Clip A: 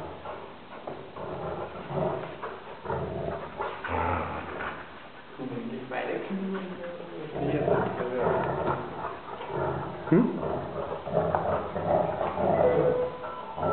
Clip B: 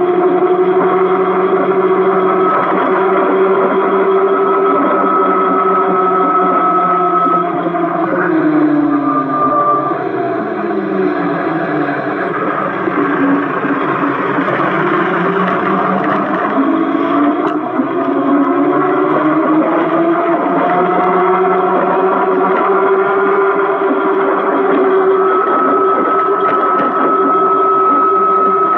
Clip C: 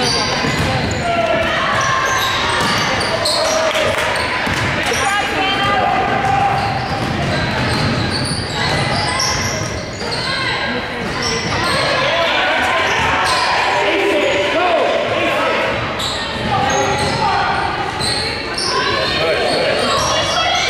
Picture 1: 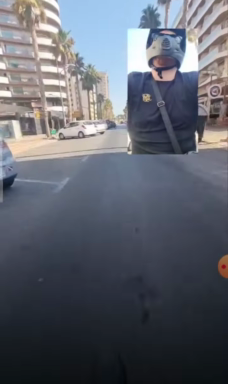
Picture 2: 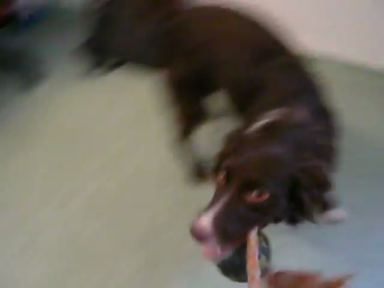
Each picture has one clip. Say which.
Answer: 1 B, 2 A